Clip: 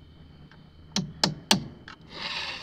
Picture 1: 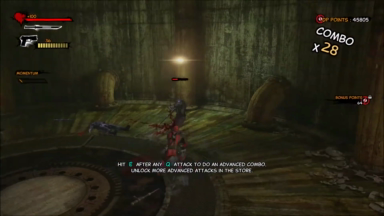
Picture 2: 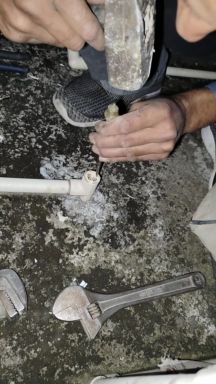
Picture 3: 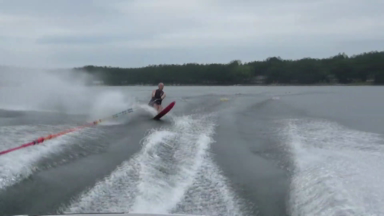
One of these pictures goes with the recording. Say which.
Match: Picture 2